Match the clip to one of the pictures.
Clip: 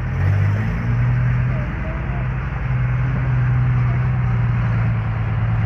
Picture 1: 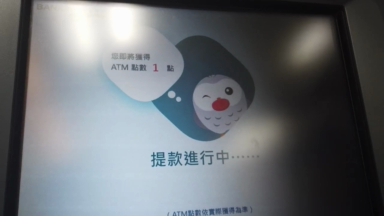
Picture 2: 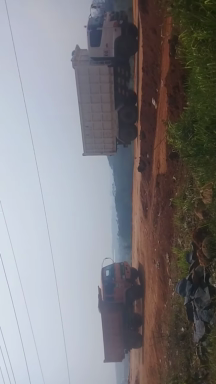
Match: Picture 2